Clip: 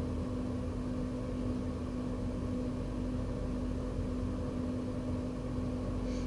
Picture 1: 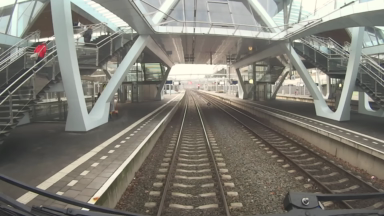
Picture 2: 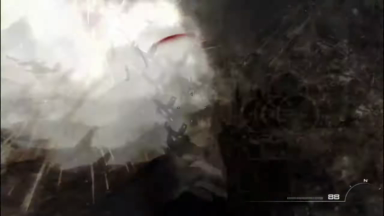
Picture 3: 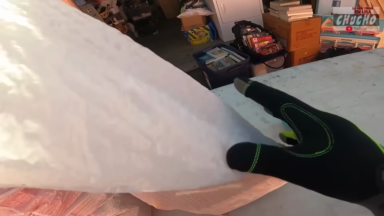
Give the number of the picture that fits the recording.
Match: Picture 1